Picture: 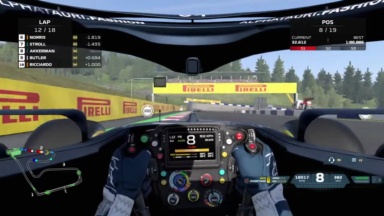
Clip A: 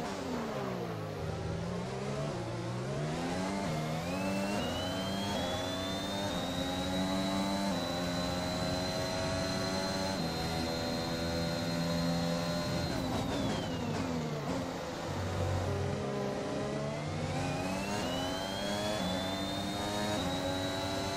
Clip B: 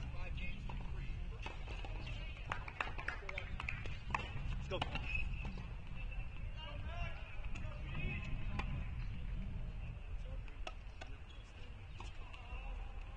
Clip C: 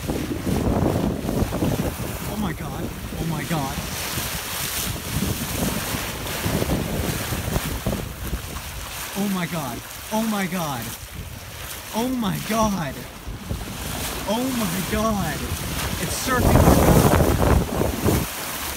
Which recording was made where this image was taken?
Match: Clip A